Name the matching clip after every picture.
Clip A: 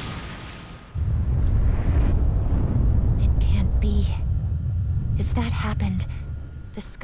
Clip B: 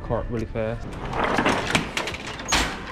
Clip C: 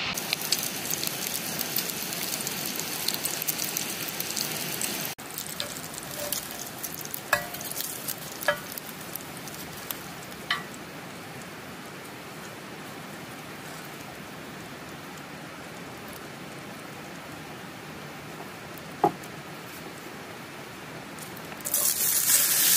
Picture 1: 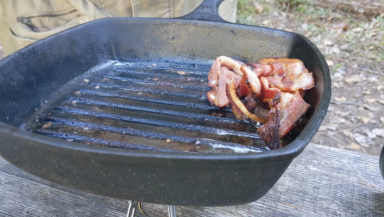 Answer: C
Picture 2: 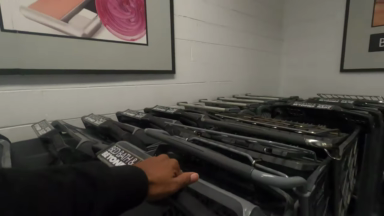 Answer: B